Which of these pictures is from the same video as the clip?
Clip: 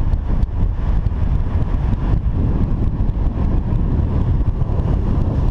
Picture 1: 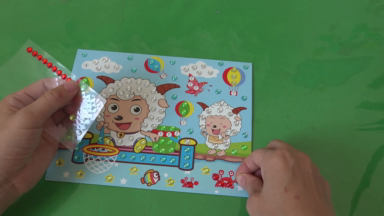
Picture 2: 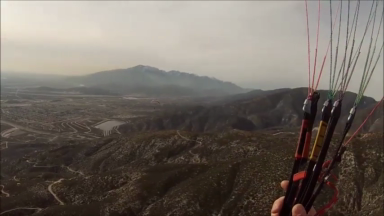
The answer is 2